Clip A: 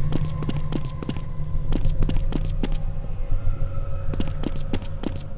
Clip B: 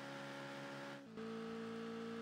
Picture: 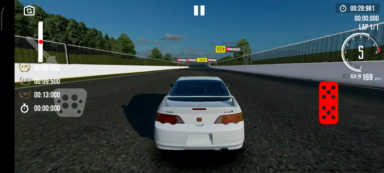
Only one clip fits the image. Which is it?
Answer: B